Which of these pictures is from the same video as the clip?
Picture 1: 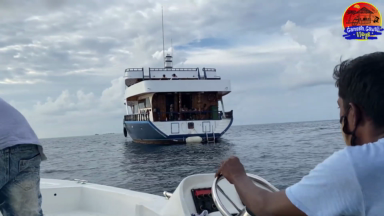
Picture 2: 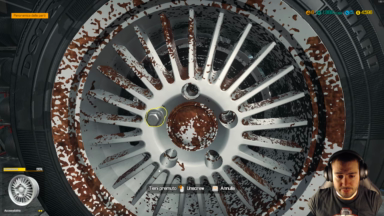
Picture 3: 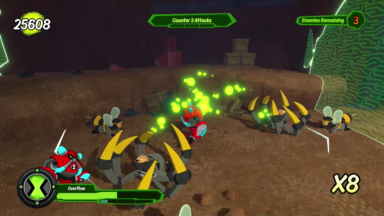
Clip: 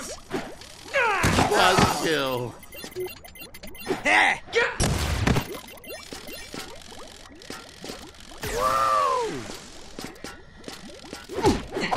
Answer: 3